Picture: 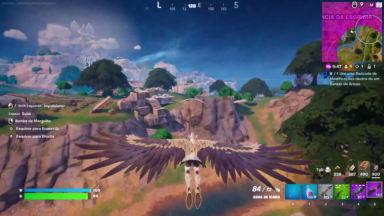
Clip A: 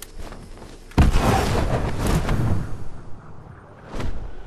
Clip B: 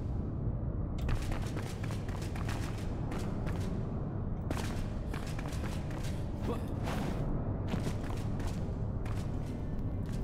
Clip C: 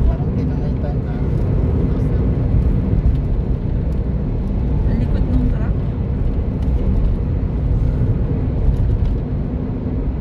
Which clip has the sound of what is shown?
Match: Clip A